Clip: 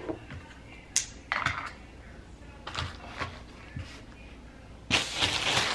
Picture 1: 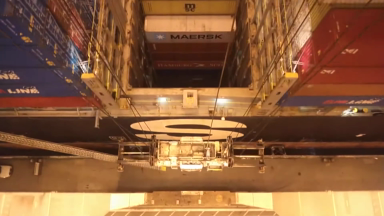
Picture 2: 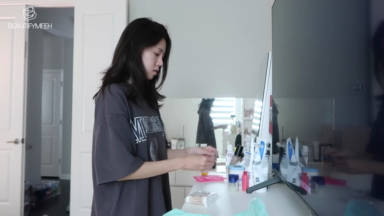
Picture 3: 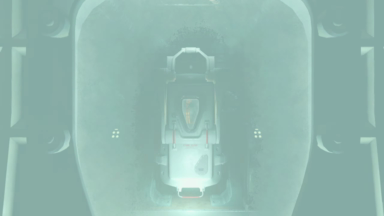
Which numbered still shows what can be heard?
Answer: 2